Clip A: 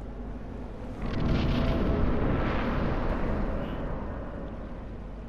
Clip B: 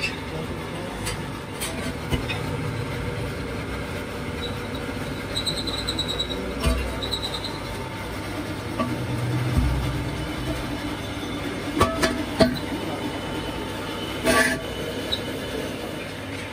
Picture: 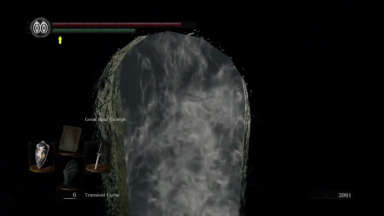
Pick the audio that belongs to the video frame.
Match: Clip A